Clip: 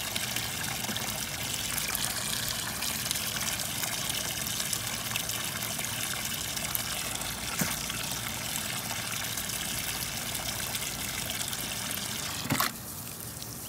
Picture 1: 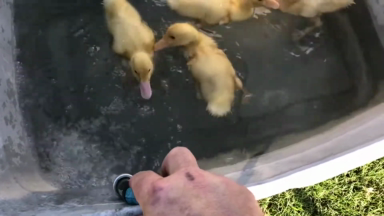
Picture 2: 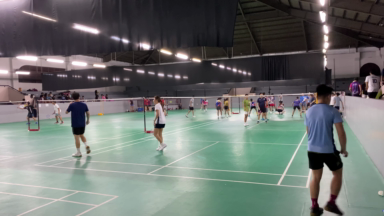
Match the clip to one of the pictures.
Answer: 1